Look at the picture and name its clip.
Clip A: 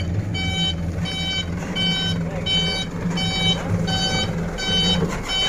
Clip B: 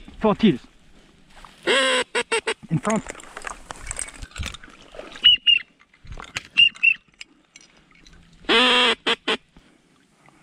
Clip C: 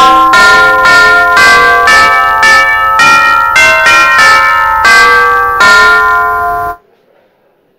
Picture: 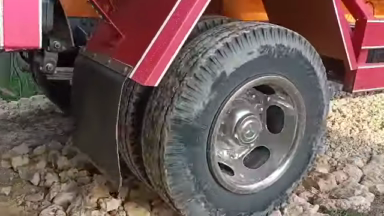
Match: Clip A